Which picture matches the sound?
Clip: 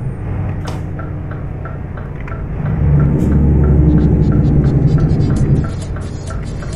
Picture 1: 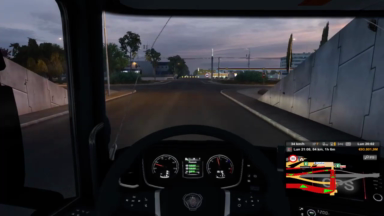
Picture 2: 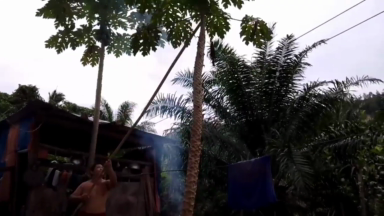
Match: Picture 1